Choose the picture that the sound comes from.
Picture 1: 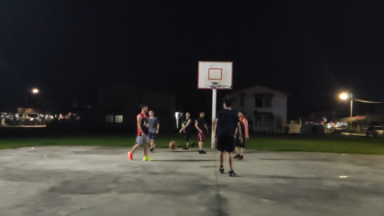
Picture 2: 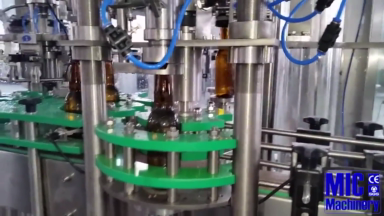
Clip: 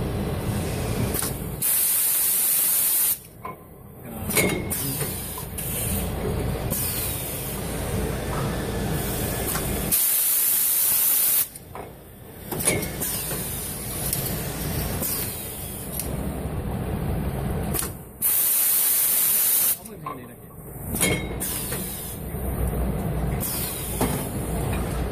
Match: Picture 2